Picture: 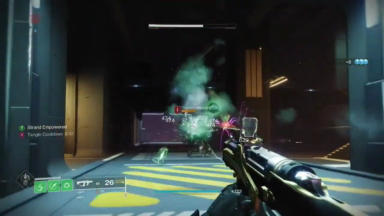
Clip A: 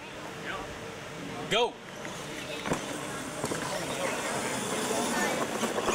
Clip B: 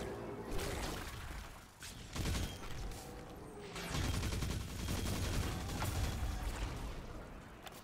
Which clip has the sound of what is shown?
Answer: B